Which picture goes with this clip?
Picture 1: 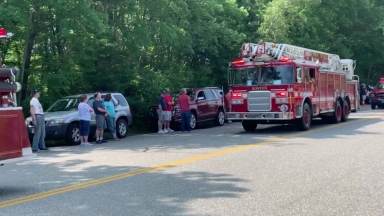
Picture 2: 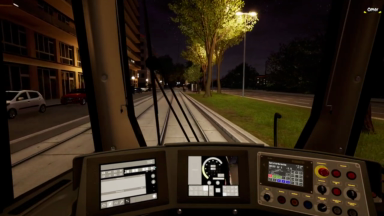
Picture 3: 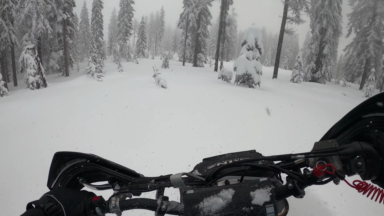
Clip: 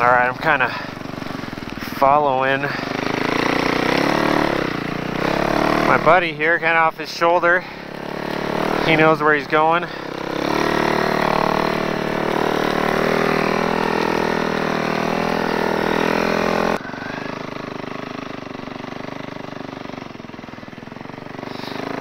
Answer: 3